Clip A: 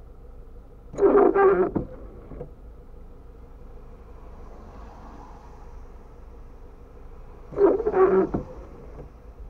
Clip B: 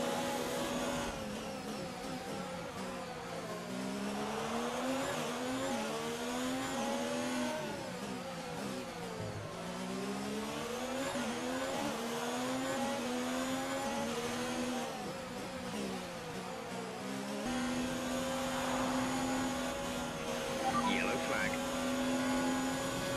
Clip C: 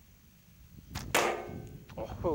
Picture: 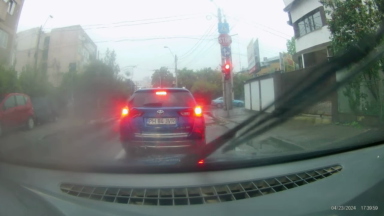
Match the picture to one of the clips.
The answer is A